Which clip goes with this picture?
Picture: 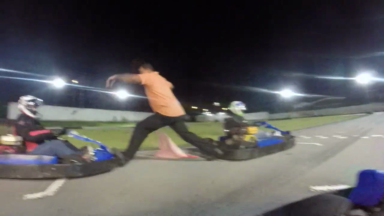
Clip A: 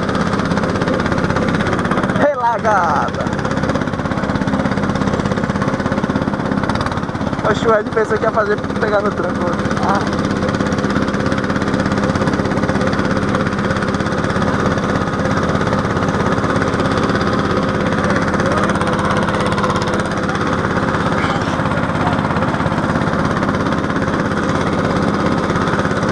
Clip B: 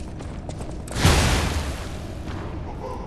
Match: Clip A